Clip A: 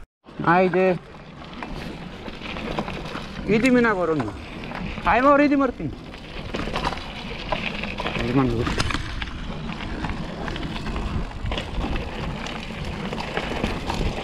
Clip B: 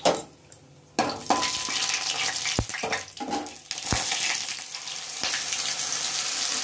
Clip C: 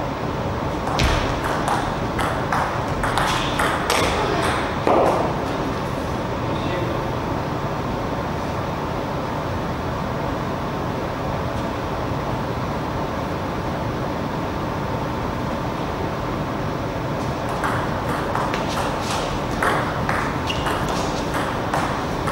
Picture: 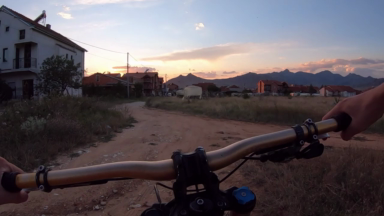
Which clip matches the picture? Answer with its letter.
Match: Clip A